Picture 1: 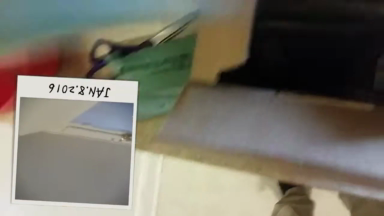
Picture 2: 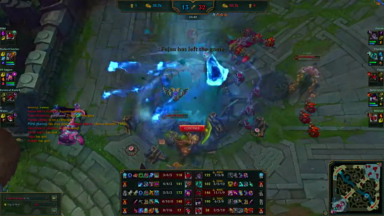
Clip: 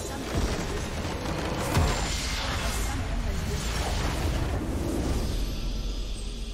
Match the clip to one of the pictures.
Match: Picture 2